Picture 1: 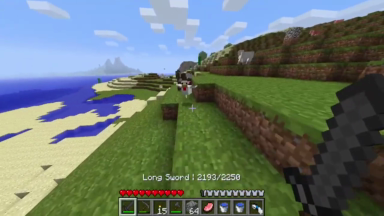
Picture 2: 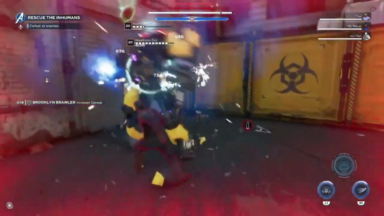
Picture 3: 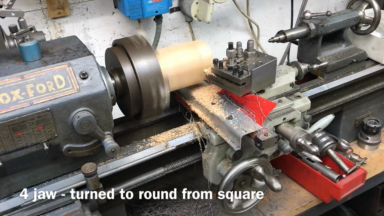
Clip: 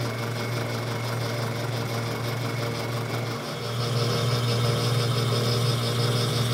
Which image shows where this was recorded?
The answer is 3